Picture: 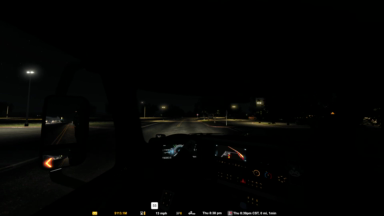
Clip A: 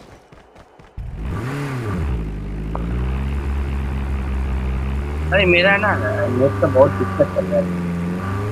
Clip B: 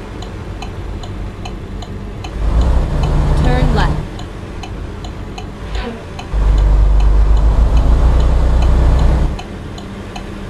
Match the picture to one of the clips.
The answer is B